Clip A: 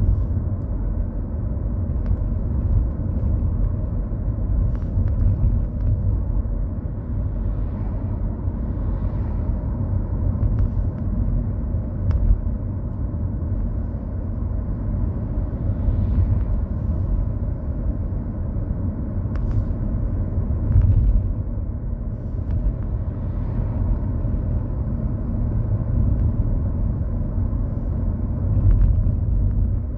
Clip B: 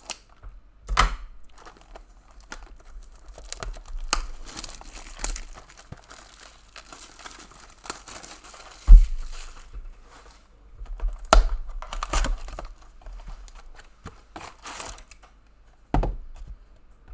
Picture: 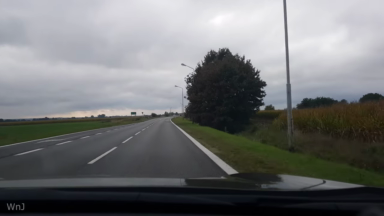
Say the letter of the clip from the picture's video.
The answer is A